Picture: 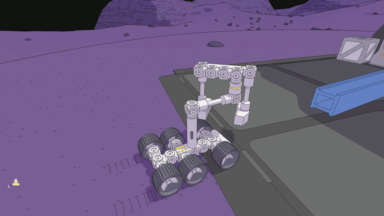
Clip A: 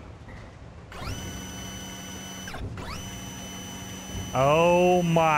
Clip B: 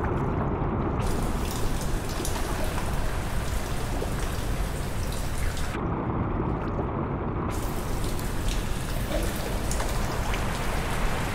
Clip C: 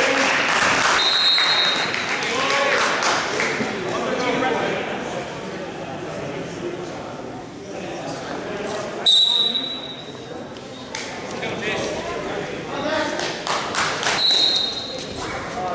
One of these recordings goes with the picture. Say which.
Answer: A